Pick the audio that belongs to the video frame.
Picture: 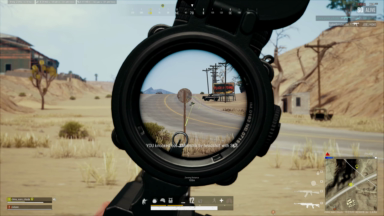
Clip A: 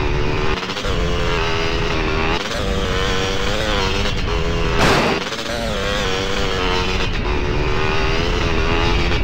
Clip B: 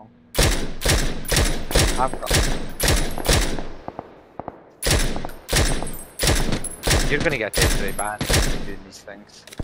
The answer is B